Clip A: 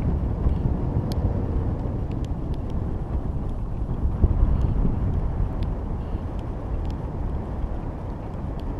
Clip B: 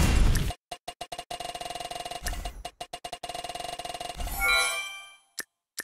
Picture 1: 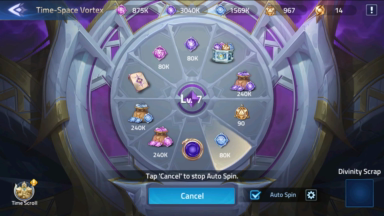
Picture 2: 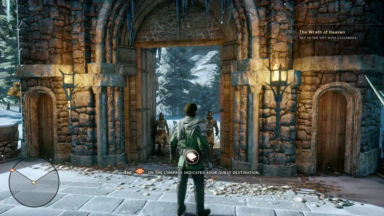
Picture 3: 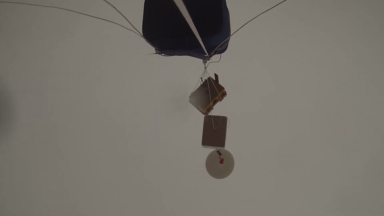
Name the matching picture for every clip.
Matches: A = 3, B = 1